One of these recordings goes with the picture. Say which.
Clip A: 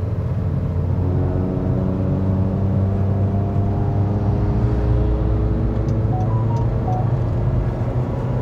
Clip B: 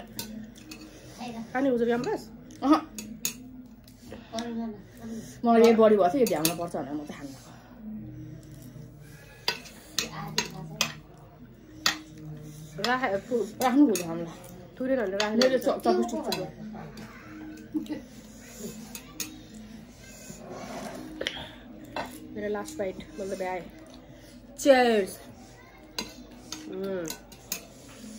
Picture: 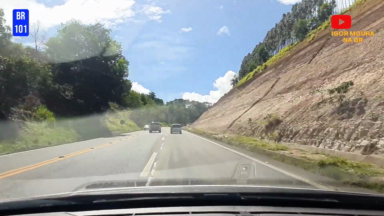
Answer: A